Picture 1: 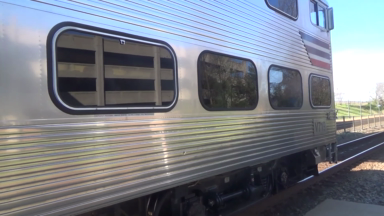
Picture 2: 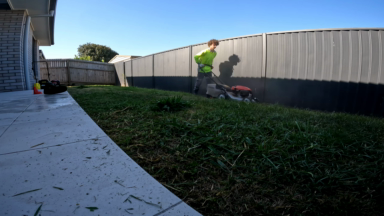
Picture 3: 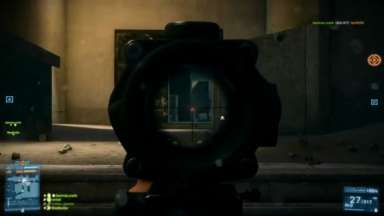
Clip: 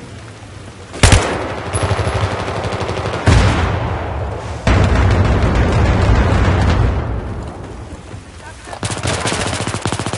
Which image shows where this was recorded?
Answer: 3